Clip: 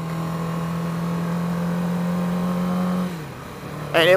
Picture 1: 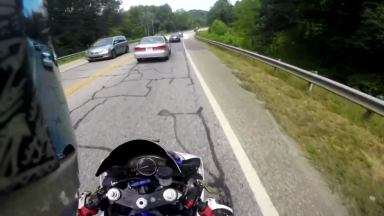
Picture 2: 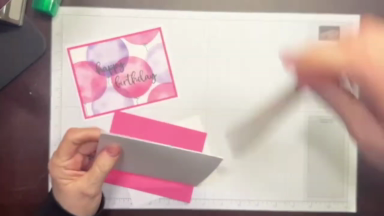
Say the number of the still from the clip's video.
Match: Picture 1